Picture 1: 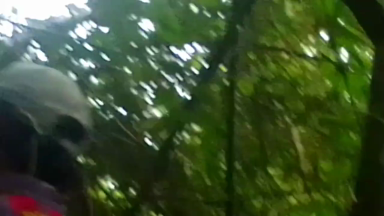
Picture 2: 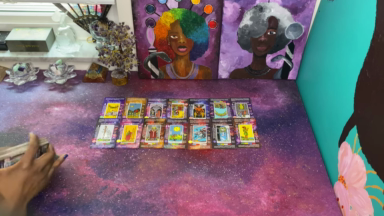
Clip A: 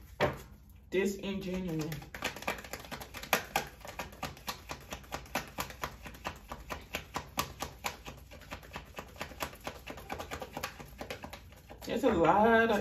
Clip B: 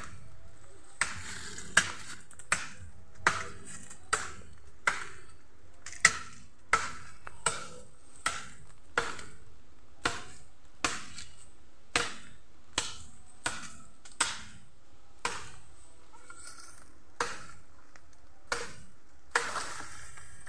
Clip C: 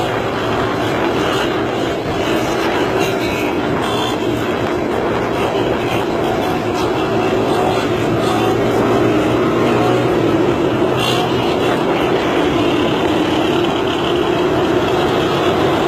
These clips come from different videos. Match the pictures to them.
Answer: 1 B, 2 A